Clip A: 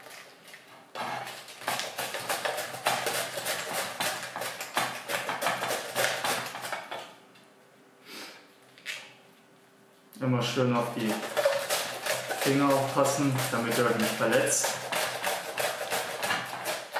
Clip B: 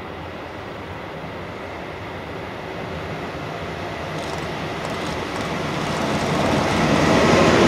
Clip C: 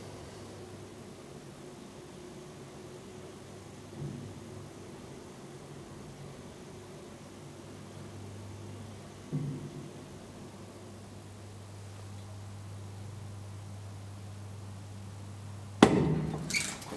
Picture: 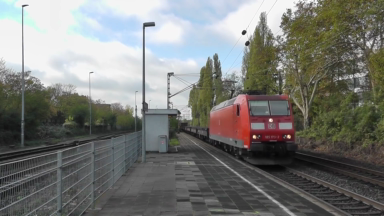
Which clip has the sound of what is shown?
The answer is B